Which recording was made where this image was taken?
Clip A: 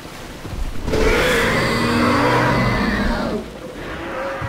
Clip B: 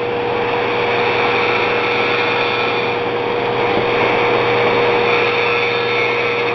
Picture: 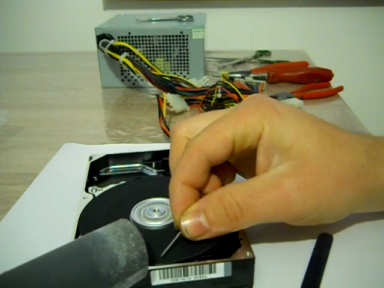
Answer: B